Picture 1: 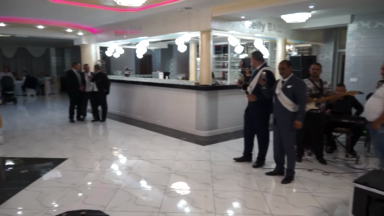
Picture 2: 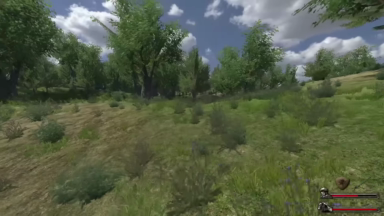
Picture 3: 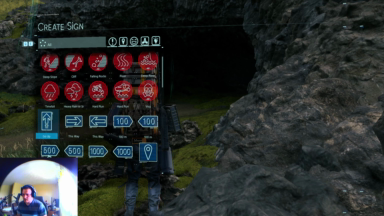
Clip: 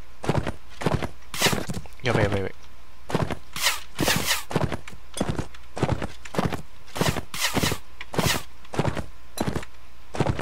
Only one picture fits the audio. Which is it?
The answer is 2